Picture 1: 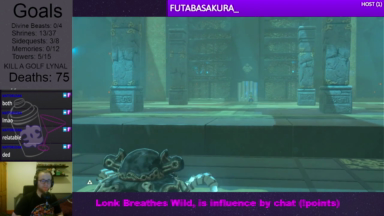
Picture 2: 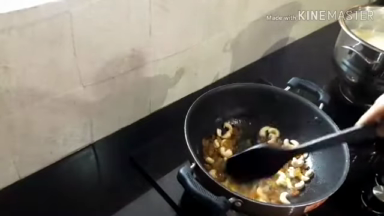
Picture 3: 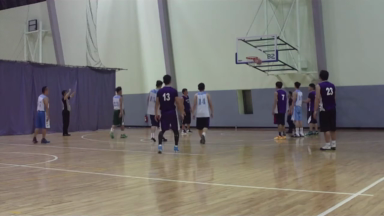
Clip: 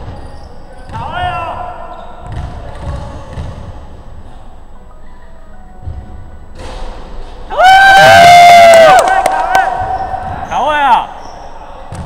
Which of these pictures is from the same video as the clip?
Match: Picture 3